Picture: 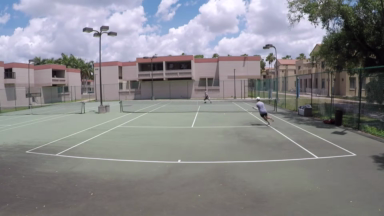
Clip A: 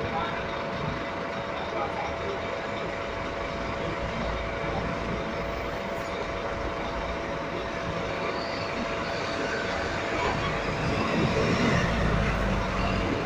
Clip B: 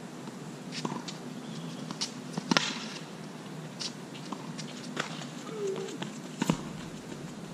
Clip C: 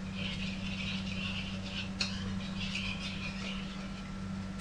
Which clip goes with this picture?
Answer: B